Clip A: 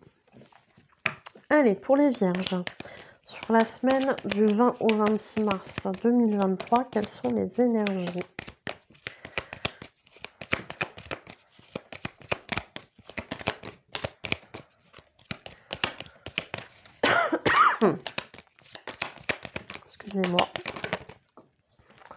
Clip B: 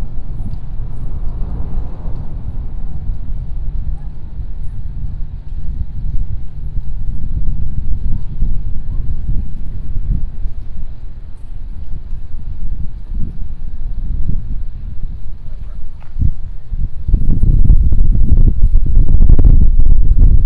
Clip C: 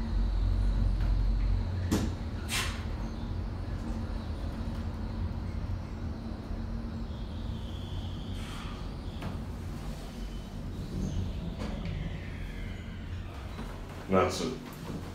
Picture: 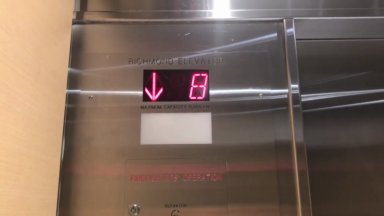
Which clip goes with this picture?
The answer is C